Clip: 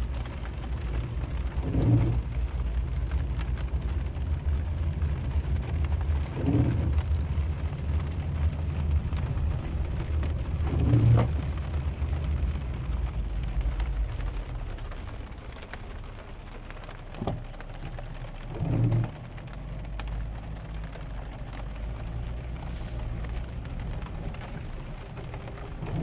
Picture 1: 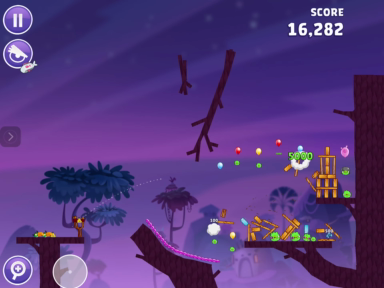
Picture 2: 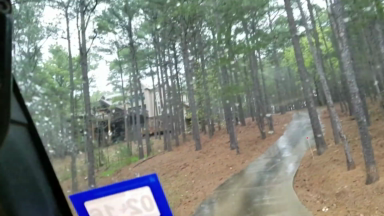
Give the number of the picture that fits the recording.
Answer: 2